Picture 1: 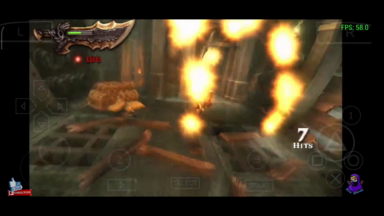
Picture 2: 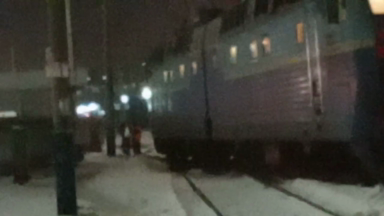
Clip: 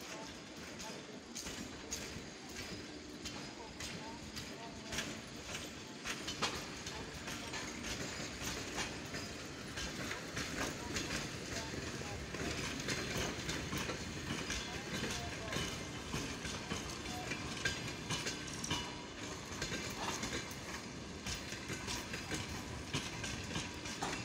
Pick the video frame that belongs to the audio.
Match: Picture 2